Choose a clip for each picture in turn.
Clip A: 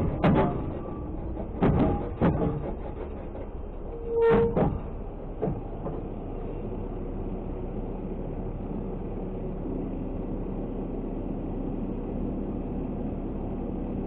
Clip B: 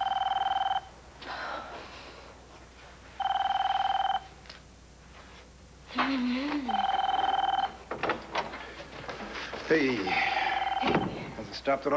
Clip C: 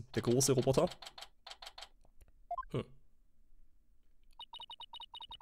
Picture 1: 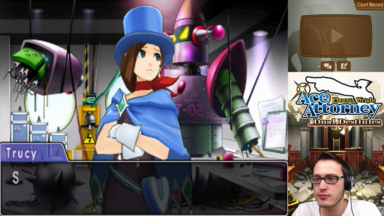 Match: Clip C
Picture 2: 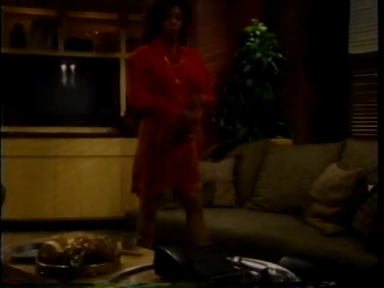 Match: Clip B